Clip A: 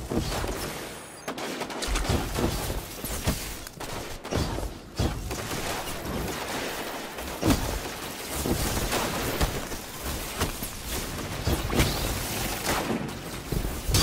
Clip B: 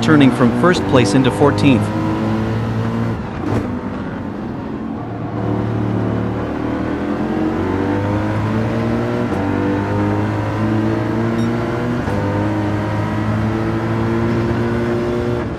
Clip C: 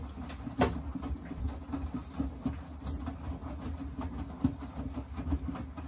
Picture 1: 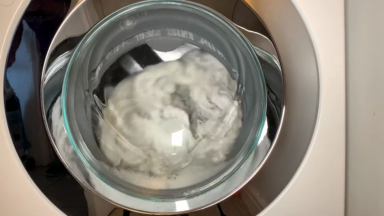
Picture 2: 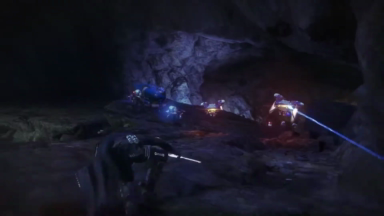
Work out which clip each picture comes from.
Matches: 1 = C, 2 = A